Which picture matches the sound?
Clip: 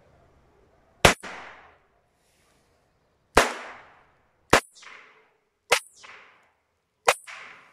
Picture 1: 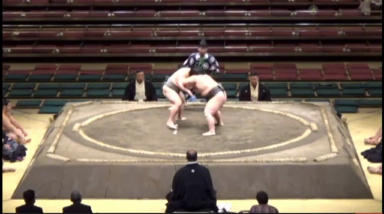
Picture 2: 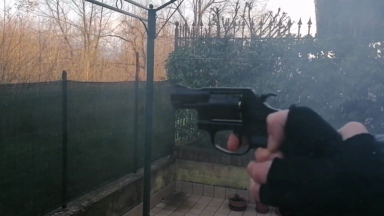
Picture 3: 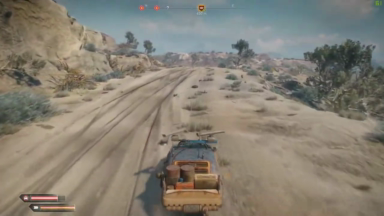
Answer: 2